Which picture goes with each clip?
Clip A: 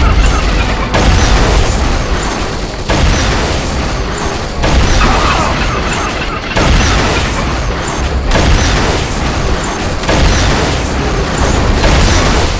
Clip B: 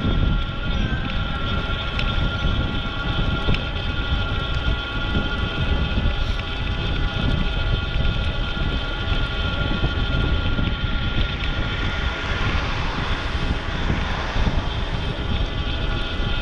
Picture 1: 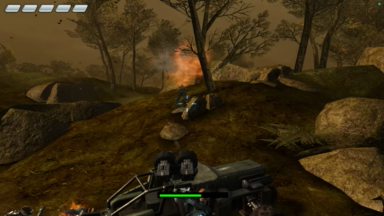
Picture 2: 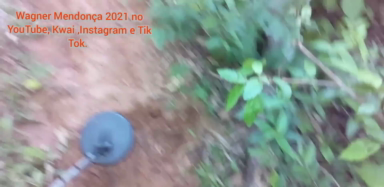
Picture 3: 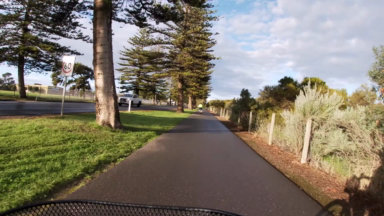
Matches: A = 1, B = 3